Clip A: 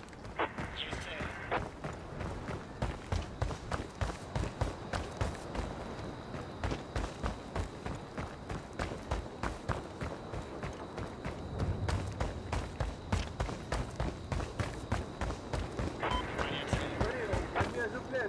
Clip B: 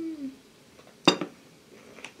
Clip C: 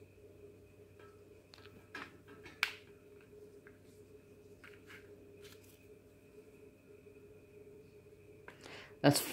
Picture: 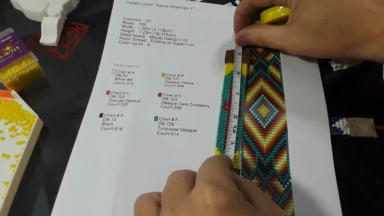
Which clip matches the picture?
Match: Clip C